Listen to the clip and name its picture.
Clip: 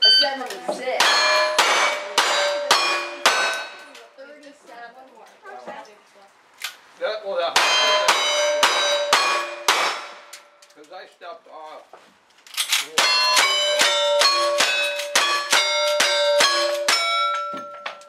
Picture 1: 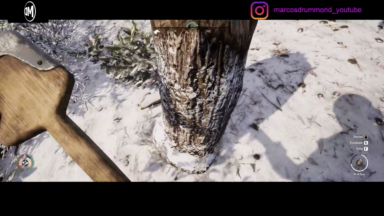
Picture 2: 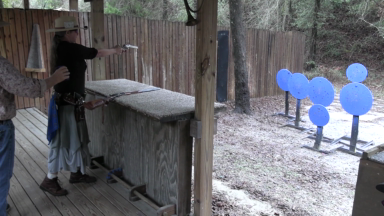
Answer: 2